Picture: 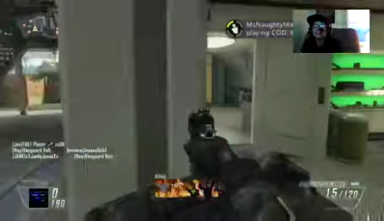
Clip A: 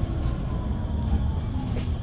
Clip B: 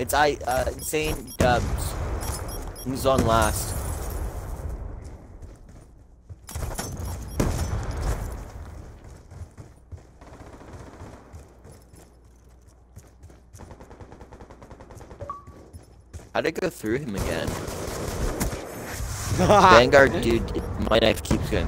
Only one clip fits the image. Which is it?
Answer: B